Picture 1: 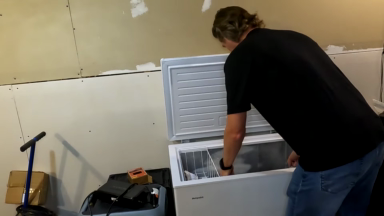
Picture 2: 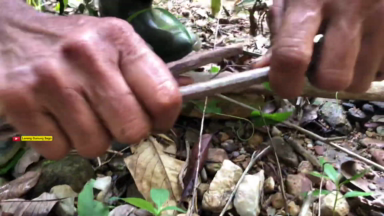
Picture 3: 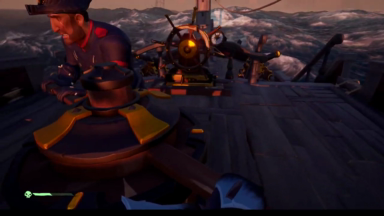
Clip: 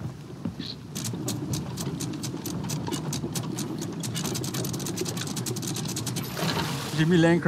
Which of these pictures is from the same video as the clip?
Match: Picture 3